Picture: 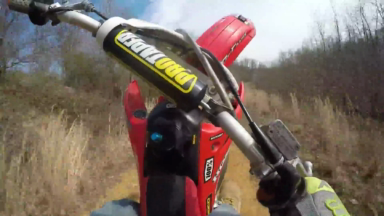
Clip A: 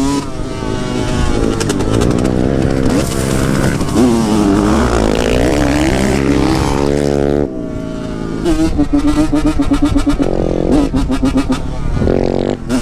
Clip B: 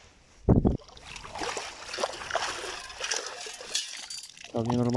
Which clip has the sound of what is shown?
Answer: A